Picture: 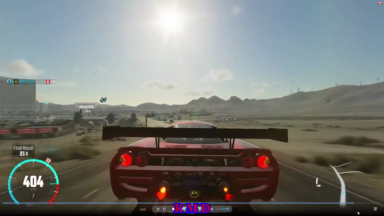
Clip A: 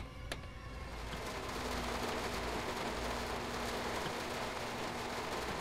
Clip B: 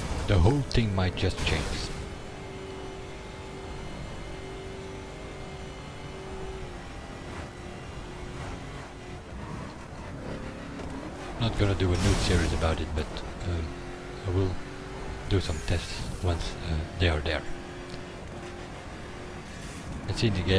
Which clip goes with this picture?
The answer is B